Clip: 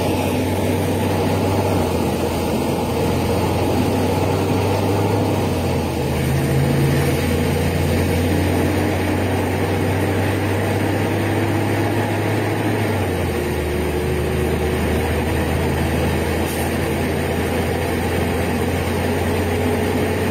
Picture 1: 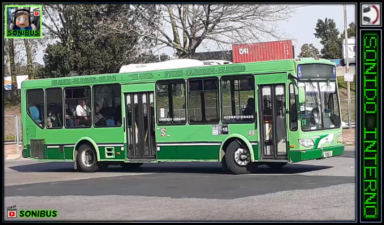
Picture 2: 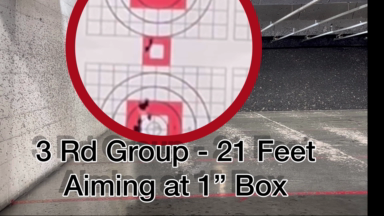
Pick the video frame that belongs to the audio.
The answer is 1